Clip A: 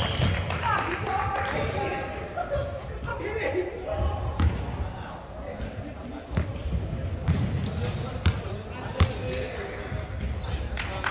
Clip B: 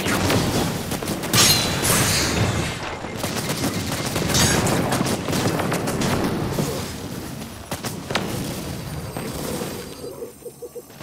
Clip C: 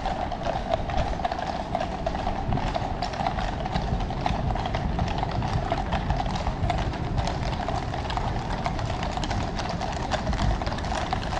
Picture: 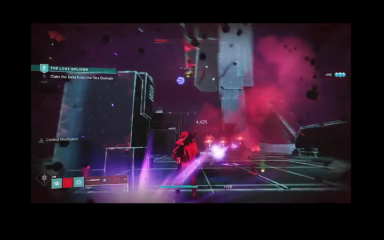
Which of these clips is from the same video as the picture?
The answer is B